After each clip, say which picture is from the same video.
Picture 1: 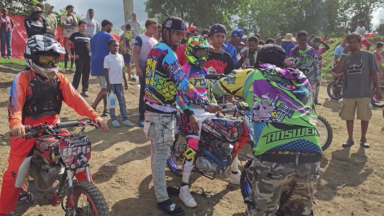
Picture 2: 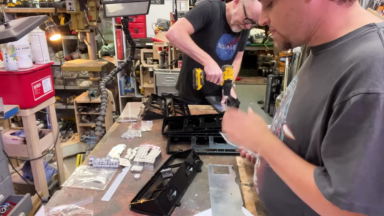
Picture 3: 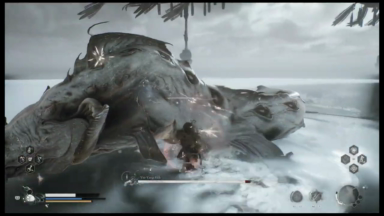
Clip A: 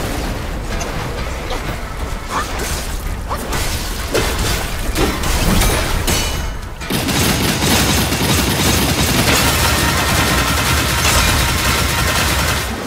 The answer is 3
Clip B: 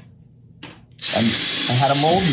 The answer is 2